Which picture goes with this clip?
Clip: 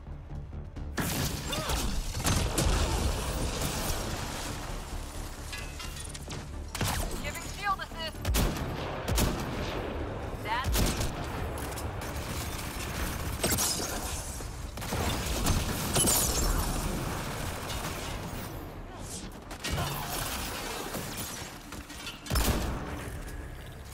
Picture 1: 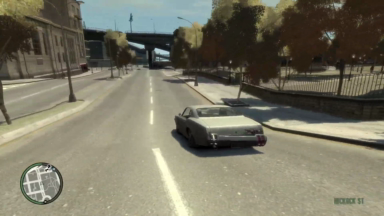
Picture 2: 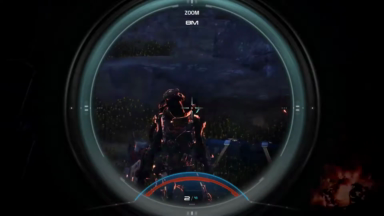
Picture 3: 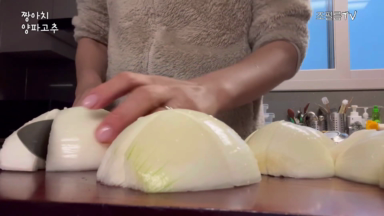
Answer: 2